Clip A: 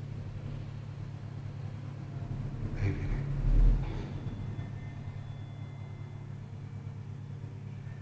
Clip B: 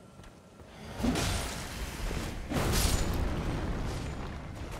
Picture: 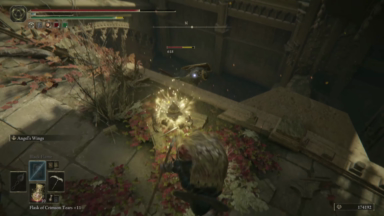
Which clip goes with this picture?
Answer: B